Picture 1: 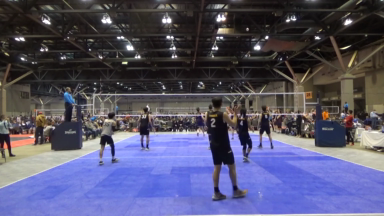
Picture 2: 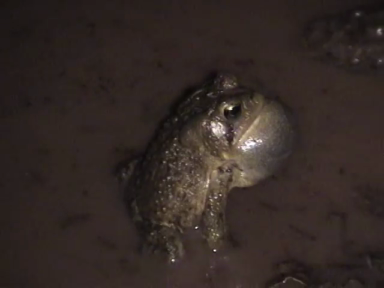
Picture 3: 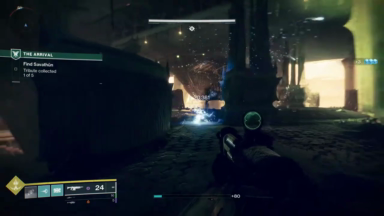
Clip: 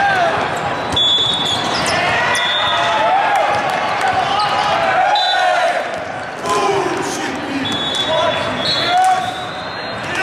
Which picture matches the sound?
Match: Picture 1